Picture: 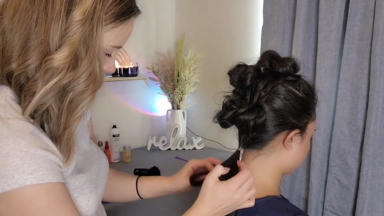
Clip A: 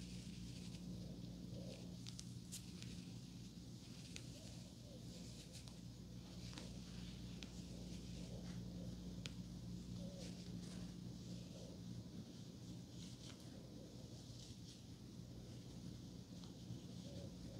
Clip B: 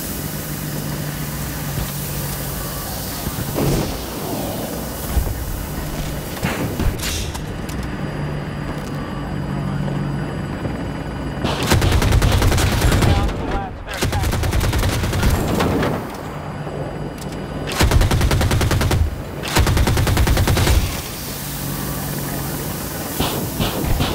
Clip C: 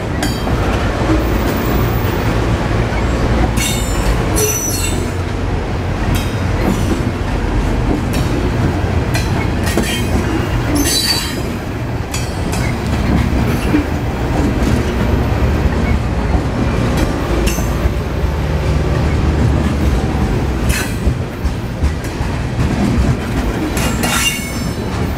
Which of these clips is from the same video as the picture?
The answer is A